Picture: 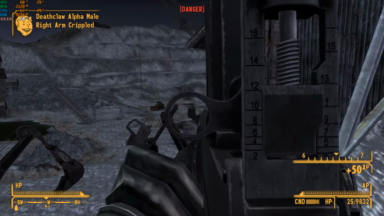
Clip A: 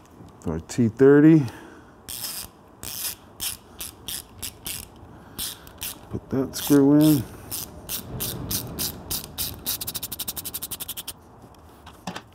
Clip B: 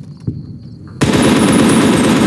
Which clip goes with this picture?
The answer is B